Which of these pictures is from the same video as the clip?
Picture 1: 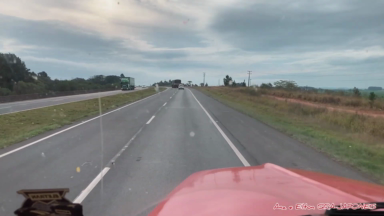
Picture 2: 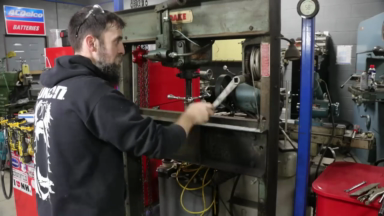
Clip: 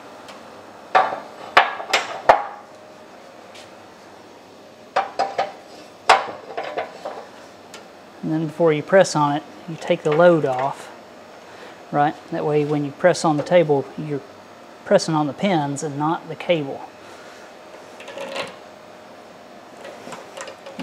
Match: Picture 2